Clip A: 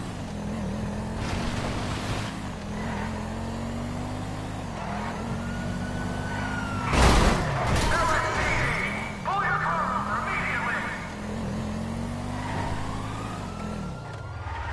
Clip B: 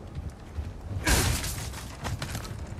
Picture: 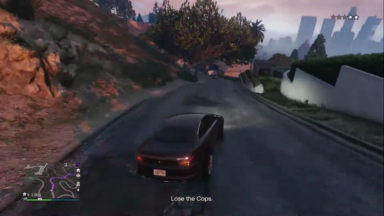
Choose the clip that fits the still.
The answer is A